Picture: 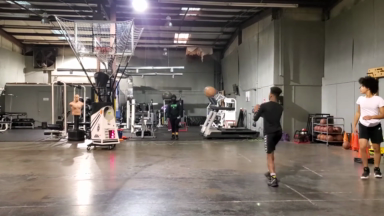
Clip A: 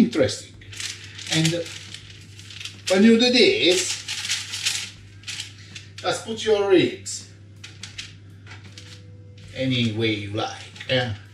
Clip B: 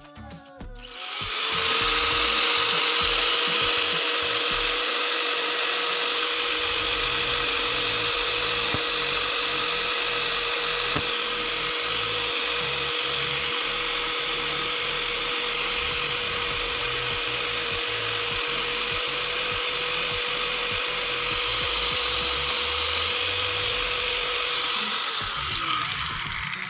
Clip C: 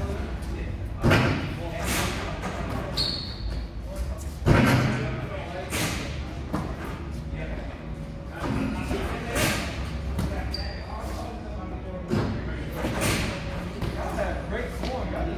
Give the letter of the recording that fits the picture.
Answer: C